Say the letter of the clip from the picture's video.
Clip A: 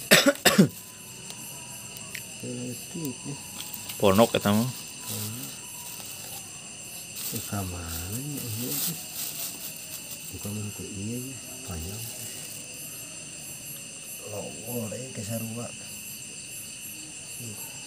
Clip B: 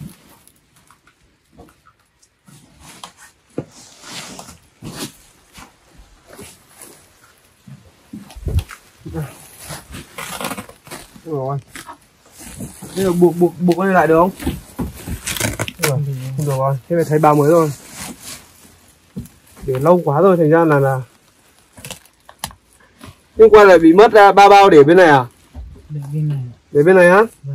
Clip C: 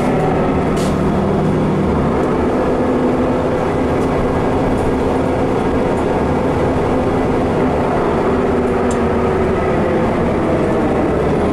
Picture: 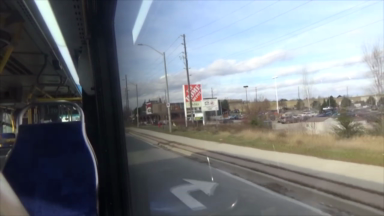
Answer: C